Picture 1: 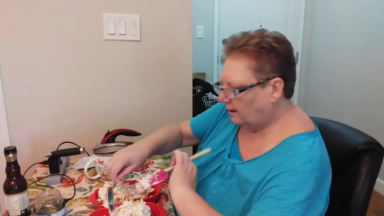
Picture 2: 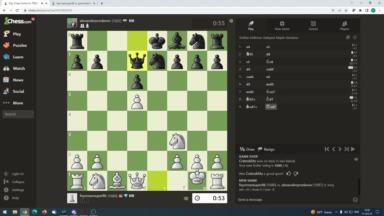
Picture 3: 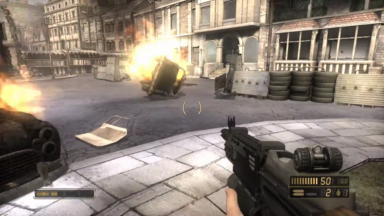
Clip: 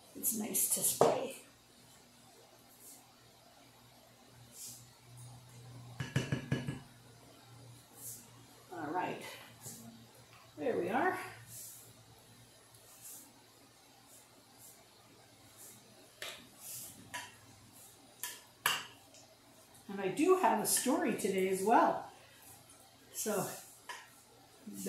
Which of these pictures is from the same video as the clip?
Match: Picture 1